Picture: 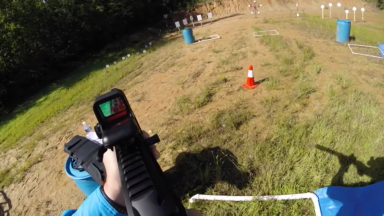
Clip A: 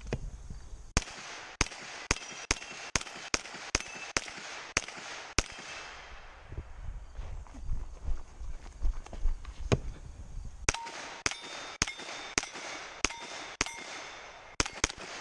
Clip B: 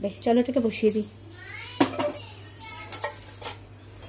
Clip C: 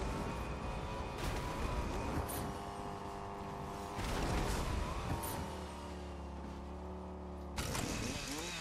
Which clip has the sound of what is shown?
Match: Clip A